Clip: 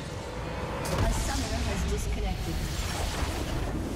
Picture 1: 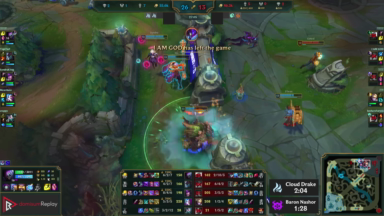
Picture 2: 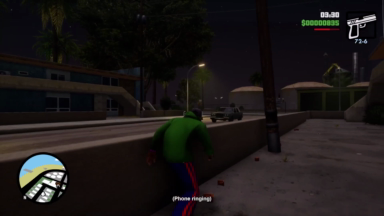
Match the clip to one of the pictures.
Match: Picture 1